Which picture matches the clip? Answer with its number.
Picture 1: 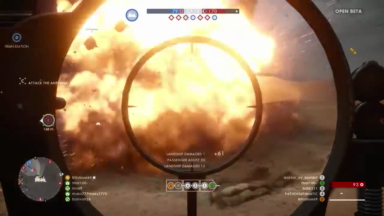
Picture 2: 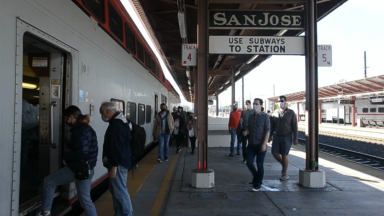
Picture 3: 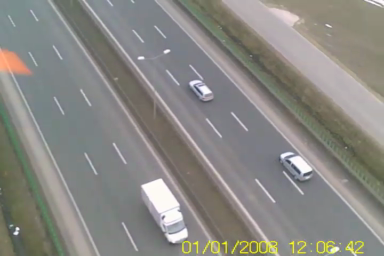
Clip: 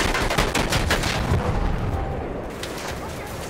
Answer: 1